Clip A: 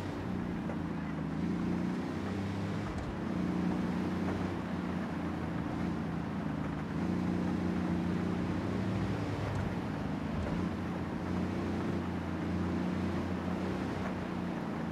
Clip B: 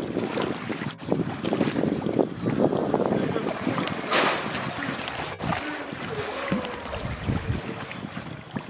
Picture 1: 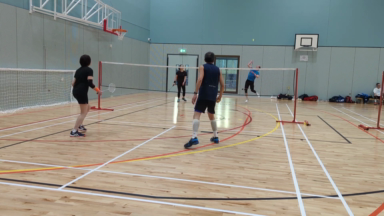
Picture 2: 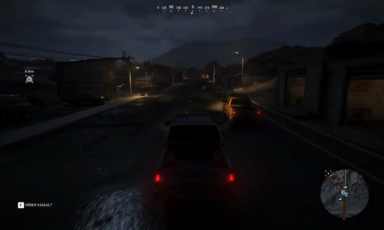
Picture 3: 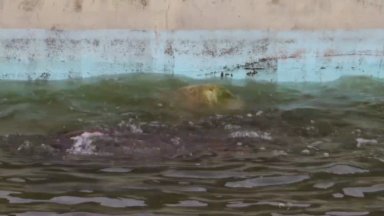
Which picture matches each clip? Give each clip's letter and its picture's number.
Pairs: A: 2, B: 3